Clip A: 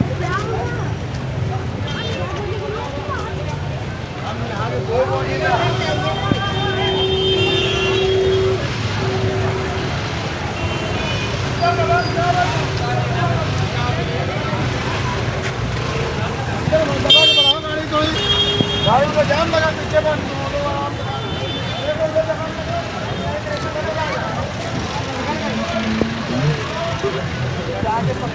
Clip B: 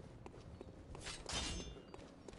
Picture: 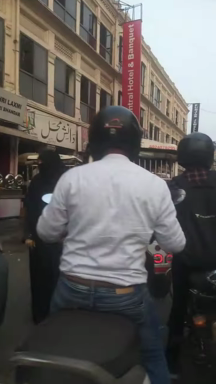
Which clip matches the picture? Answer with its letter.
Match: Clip A